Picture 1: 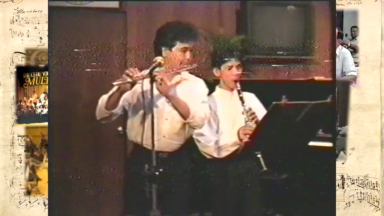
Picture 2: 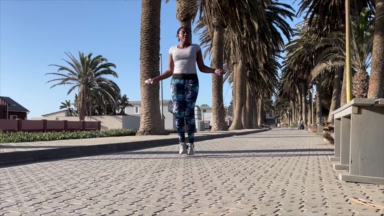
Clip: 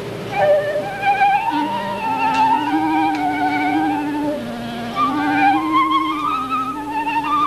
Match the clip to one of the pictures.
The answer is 1